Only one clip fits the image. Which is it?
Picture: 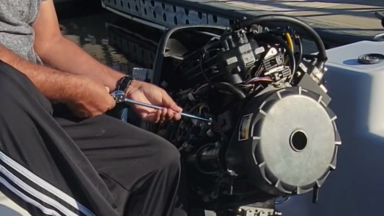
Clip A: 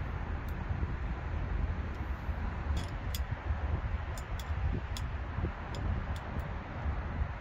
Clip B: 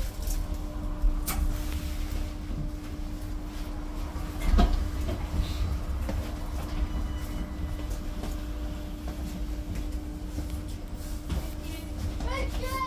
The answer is A